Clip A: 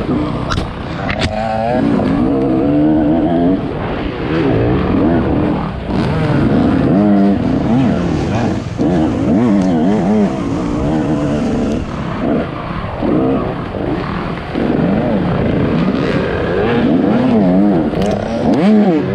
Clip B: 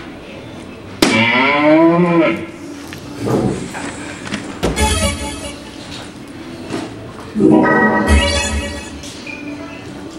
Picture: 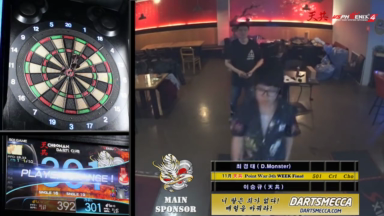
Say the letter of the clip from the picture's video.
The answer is B